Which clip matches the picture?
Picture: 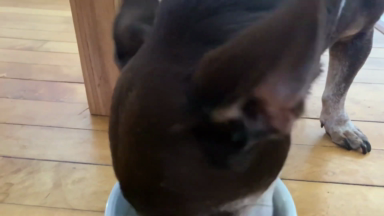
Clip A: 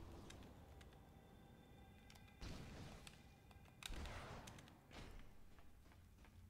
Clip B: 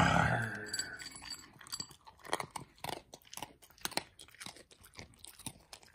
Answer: B